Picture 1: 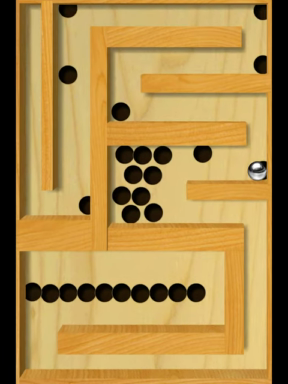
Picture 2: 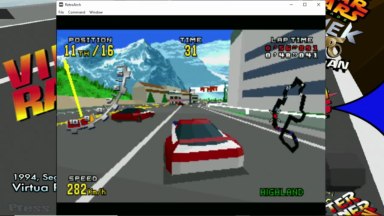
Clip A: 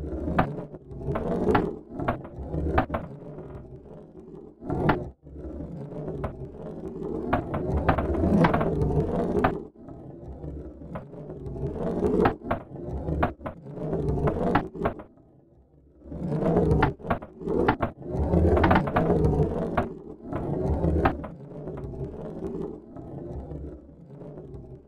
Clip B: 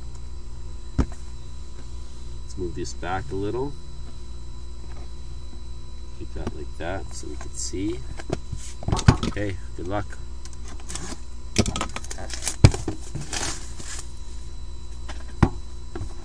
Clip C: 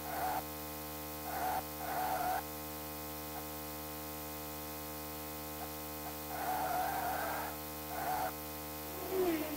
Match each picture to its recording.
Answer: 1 A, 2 C